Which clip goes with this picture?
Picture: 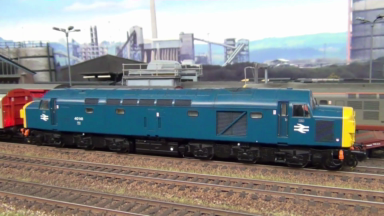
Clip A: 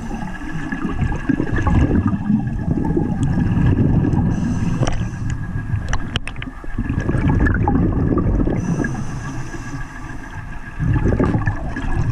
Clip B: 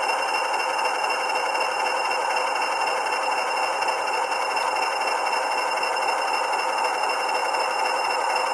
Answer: B